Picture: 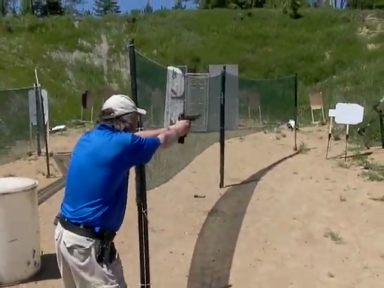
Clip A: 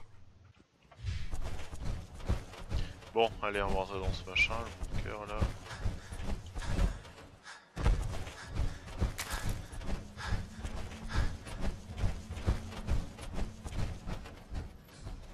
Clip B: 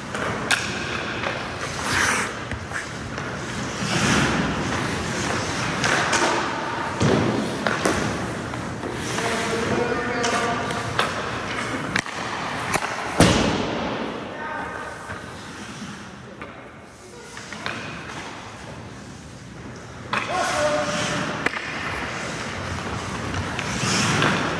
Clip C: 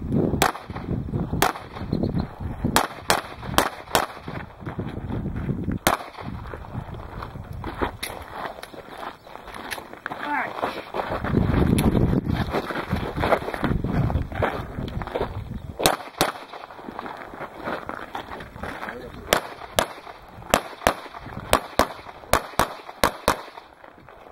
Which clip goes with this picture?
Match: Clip C